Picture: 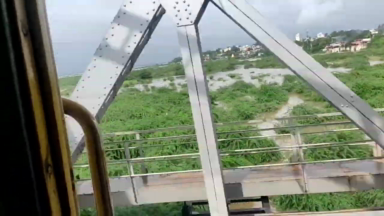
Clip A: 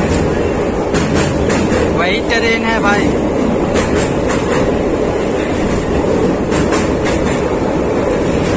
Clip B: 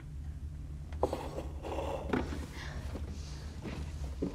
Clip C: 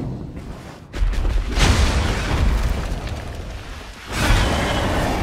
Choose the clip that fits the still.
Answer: A